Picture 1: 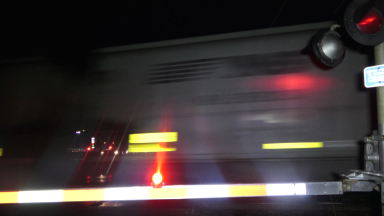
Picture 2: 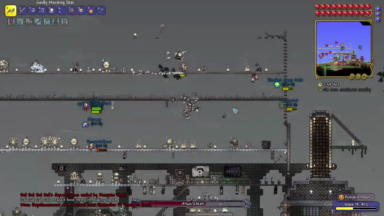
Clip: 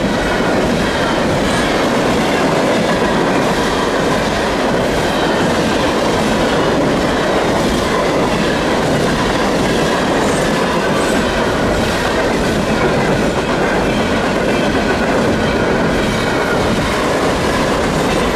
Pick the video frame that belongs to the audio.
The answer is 1